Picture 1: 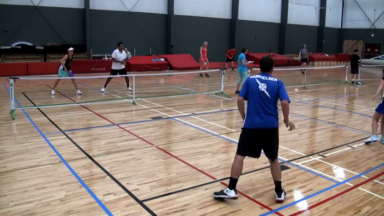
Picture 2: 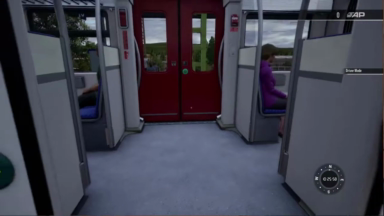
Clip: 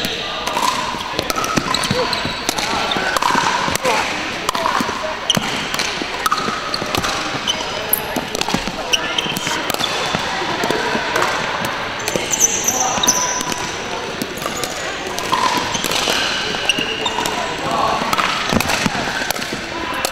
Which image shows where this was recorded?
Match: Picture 1